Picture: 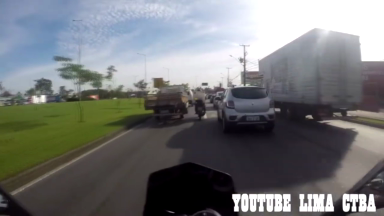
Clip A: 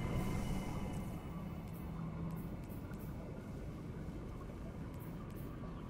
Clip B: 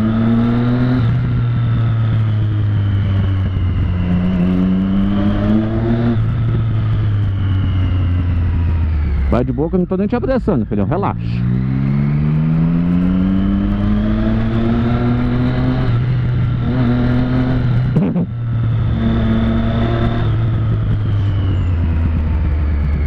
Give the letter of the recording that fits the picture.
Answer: B